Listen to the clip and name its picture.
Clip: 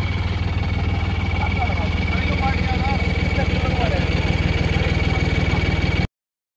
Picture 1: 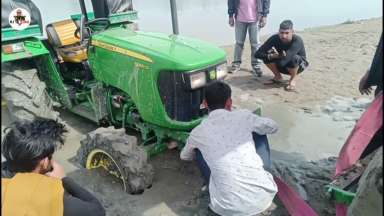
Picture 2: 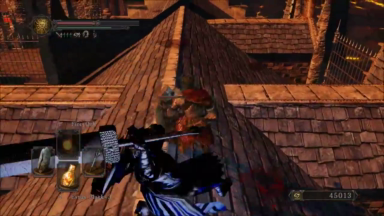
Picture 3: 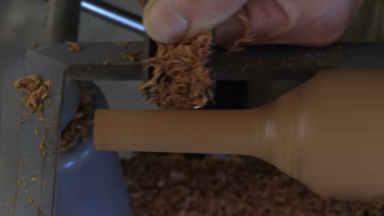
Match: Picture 1